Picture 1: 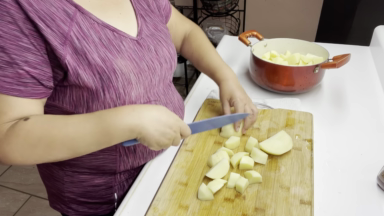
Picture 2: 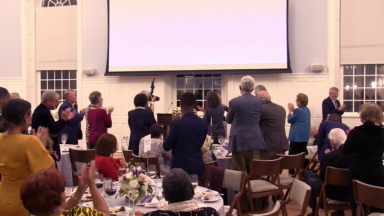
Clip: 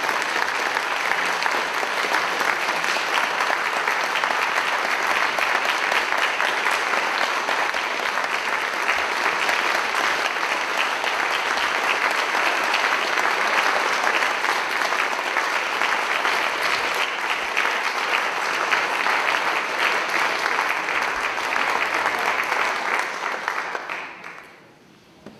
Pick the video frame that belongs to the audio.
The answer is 2